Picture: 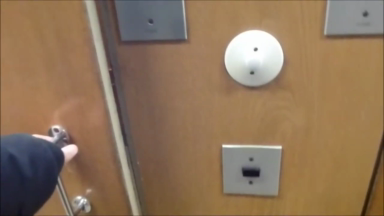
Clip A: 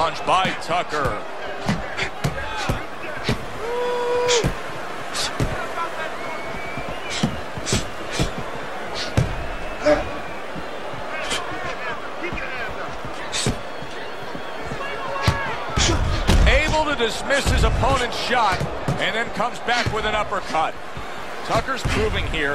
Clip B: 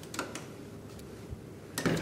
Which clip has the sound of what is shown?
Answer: B